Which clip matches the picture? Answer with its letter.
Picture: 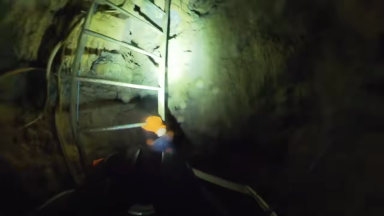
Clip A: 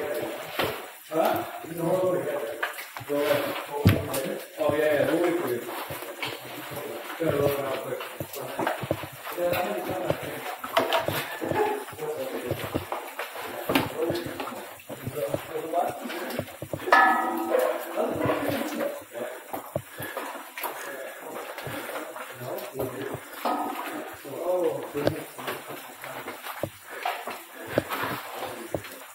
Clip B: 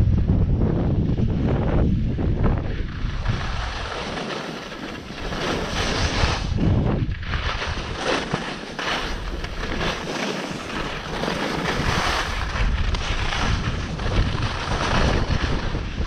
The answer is A